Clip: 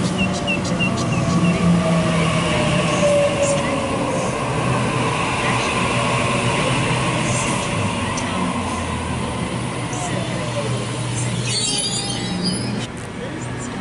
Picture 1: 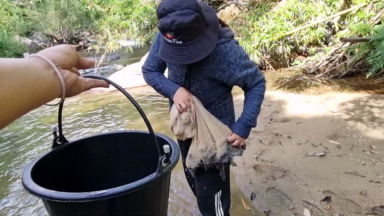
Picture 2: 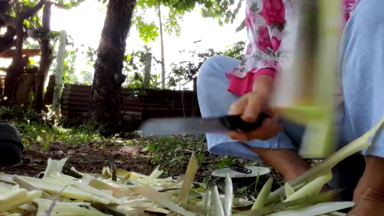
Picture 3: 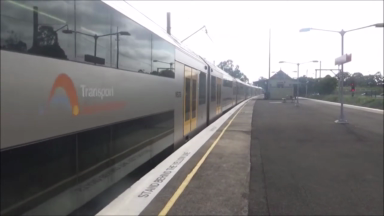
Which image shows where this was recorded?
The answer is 3